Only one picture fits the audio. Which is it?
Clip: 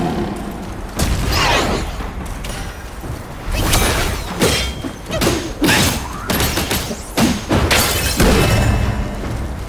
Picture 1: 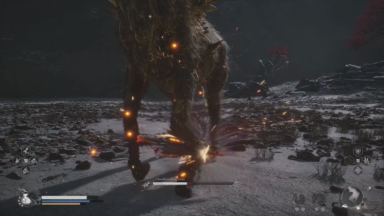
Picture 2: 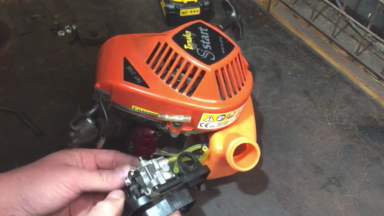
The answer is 1